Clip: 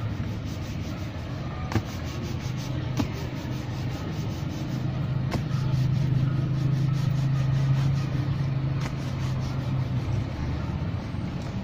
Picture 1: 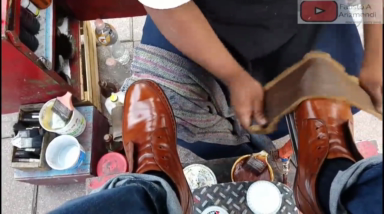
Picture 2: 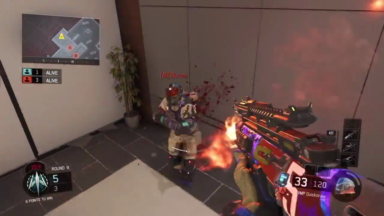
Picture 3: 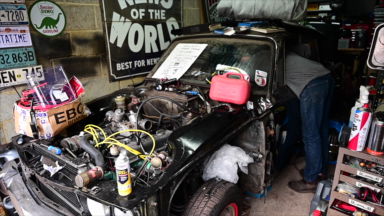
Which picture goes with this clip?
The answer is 1